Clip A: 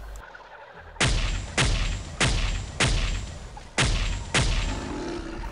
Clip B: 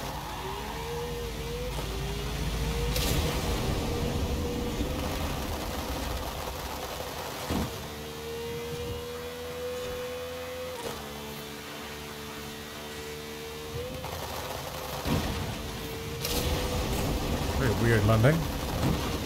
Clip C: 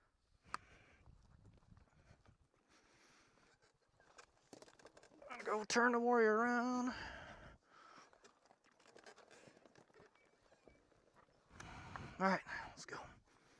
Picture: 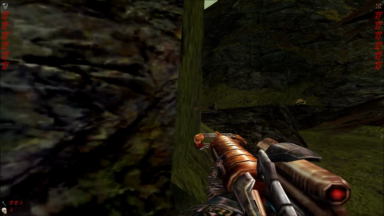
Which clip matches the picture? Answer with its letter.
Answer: A